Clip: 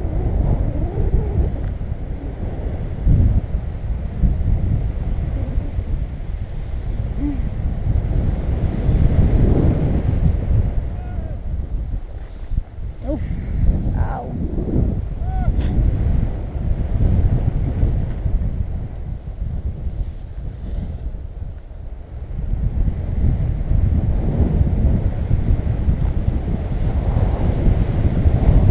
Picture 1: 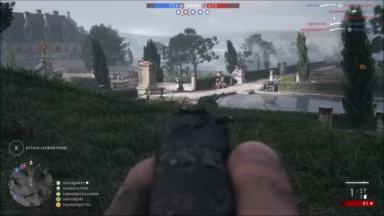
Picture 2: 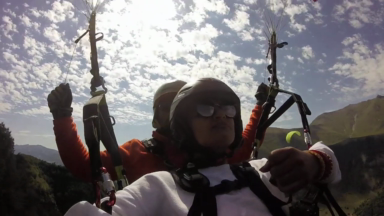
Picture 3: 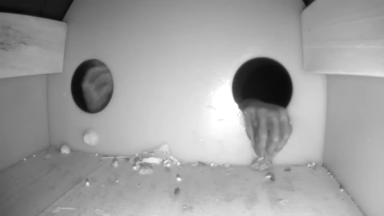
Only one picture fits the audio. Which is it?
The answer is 2